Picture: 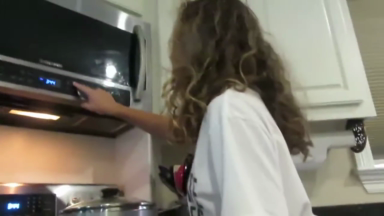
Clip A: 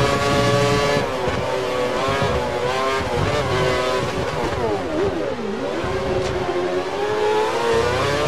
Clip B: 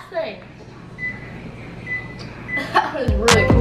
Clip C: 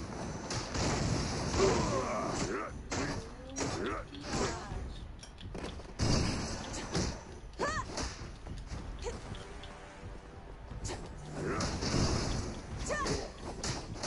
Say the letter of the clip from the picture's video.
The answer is B